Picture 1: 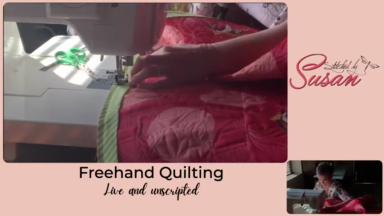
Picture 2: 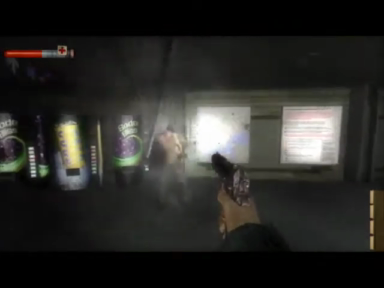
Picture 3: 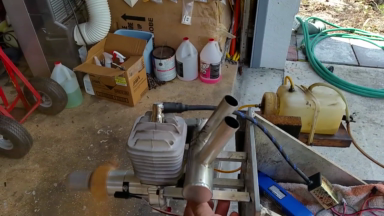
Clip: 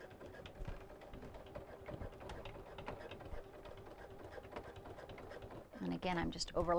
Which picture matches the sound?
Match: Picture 1